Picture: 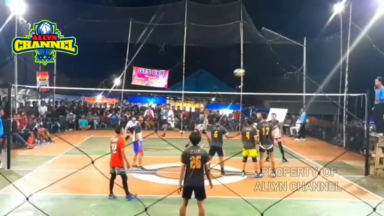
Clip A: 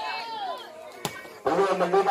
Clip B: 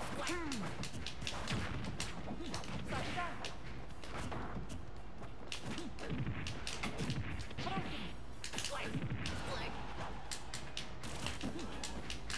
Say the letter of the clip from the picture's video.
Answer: A